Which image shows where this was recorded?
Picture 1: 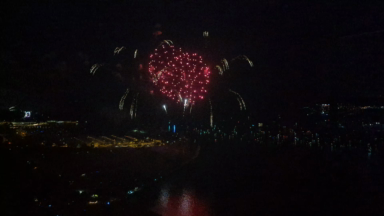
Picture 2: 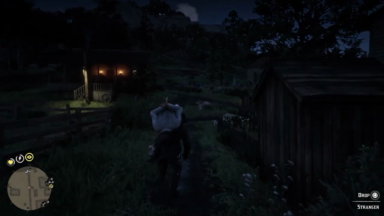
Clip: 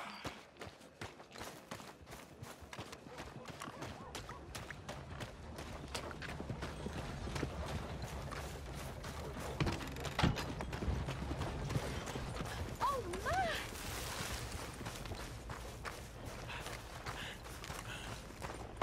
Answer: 2